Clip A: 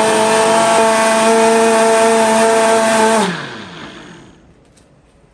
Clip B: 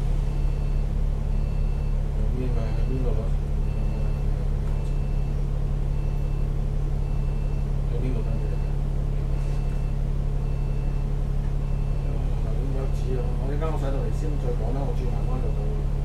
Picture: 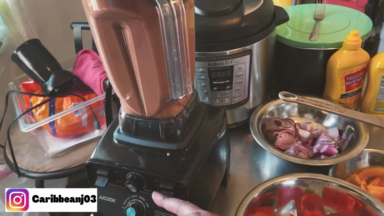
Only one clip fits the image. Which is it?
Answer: A